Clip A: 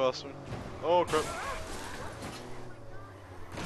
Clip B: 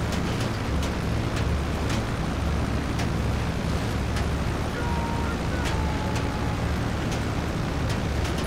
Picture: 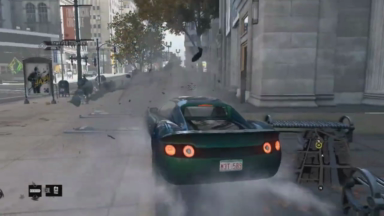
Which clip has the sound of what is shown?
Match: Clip A